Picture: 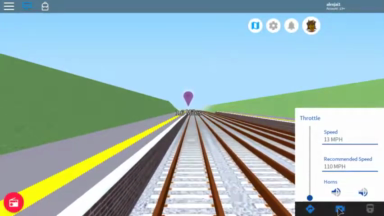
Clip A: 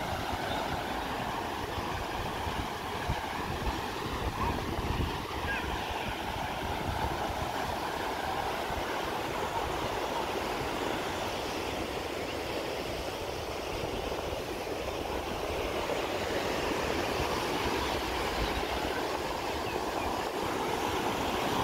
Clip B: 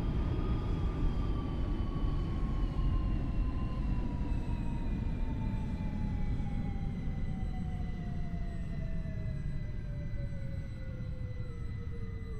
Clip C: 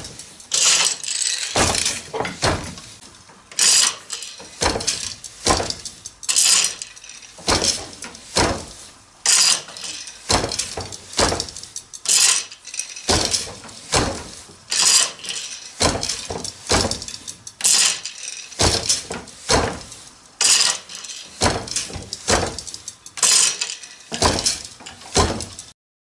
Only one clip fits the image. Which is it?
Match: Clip B